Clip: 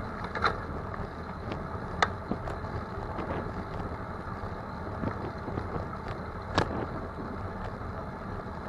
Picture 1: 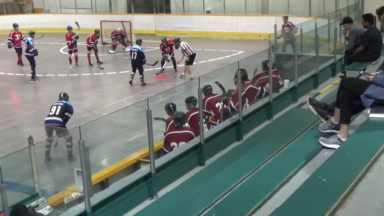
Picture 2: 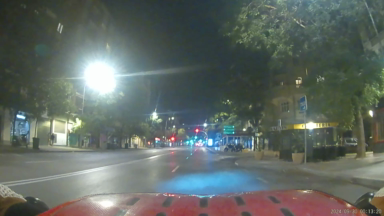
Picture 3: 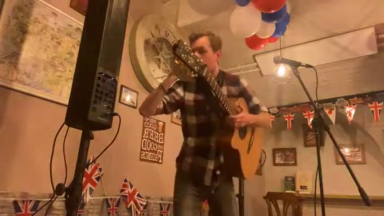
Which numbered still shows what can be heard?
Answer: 2